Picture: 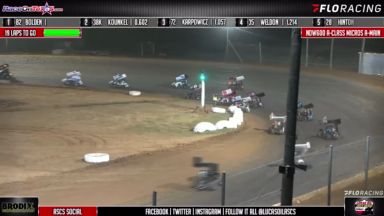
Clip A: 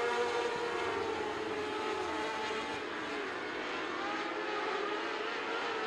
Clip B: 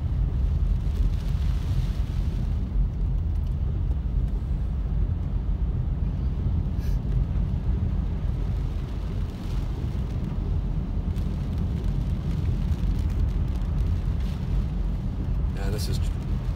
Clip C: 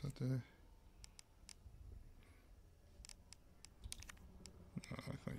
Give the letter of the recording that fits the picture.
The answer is A